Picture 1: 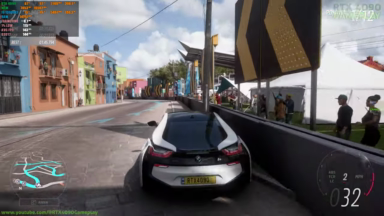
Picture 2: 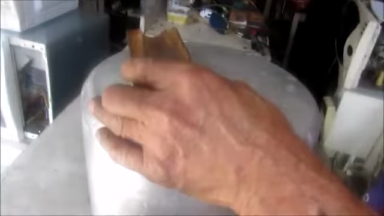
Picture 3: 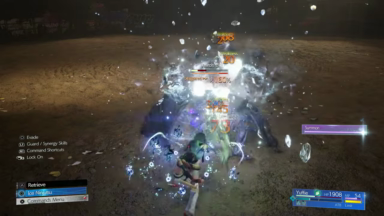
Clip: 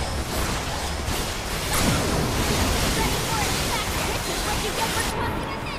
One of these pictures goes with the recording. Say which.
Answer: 3